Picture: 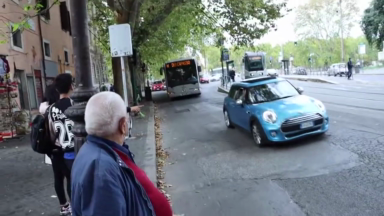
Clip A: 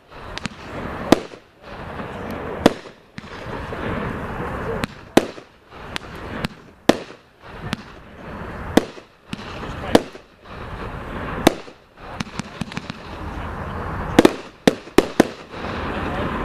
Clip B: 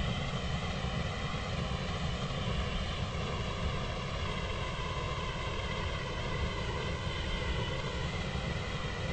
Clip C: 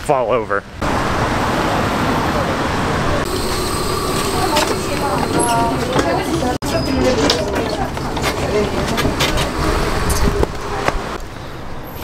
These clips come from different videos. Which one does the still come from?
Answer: C